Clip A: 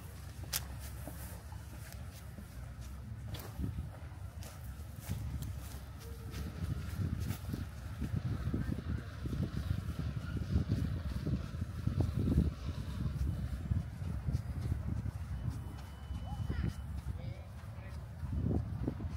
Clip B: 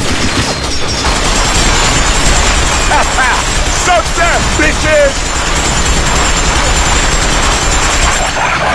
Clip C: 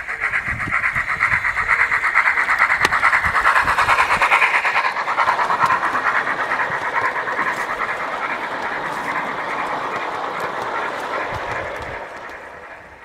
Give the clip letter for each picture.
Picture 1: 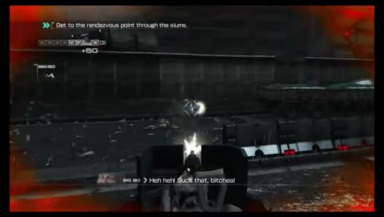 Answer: B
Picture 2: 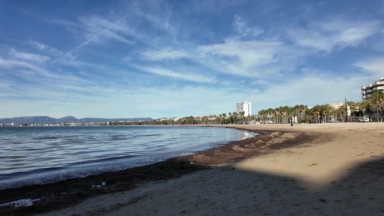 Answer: A